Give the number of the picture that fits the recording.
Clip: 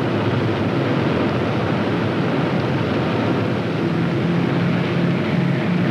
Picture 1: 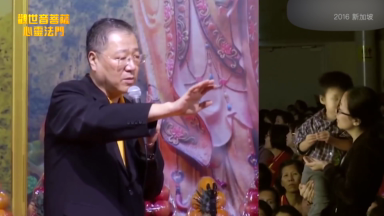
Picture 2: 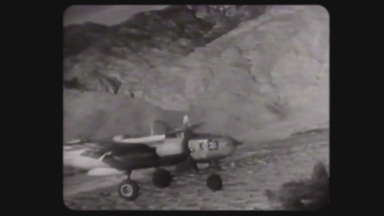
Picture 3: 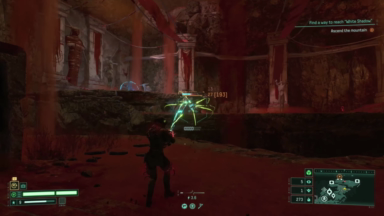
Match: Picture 2